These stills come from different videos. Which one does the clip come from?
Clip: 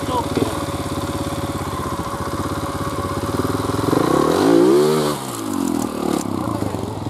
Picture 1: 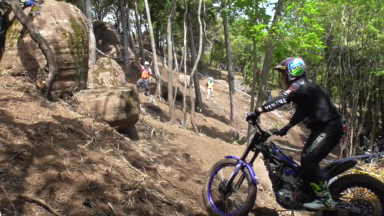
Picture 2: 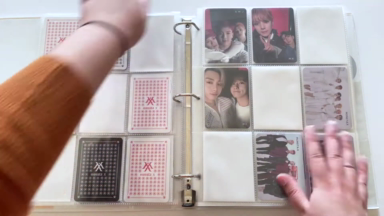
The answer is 1